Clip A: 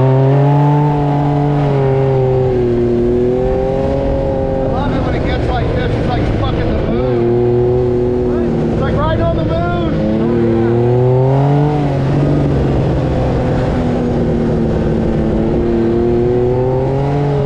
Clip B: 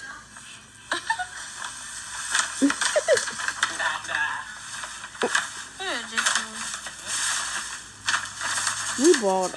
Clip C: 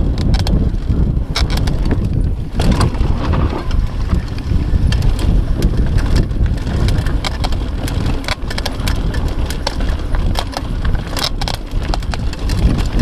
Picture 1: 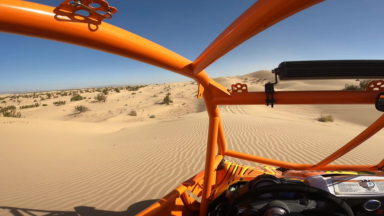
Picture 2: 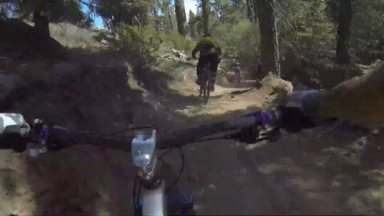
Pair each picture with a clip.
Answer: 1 A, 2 C